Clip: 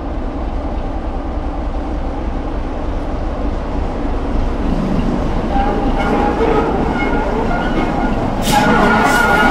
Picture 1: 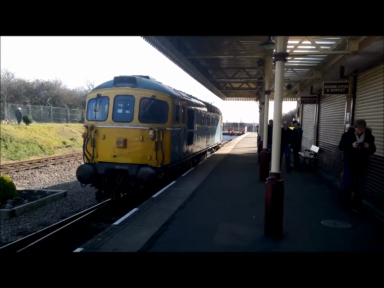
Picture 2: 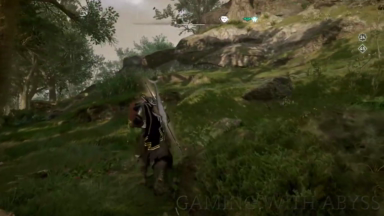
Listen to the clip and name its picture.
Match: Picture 1